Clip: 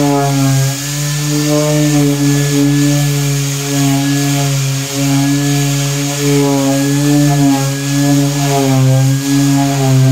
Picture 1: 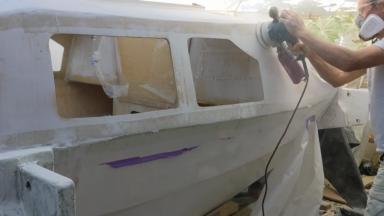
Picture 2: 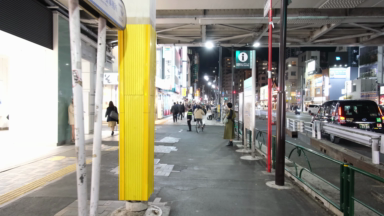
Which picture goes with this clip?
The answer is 1